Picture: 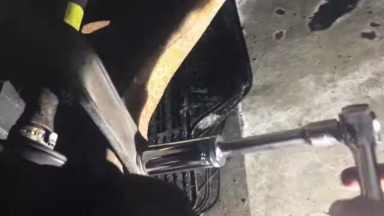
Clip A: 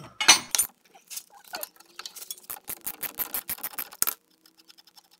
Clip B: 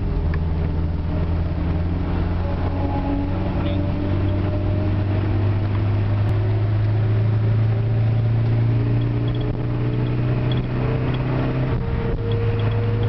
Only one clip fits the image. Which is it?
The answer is A